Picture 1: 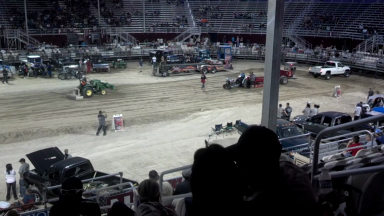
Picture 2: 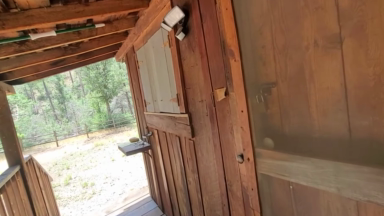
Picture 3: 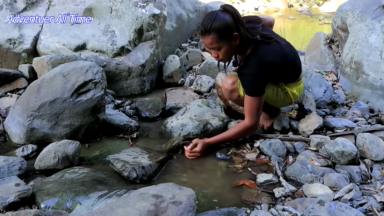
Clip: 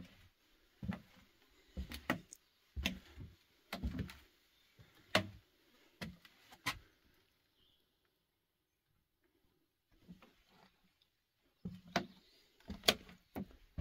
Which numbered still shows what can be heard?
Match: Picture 2